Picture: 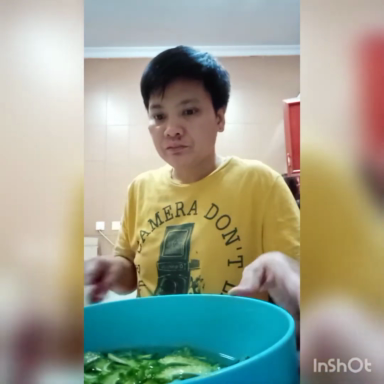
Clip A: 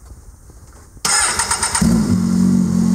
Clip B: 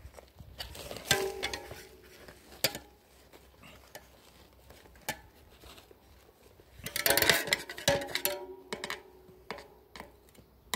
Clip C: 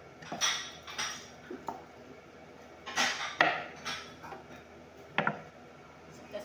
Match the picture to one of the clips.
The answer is C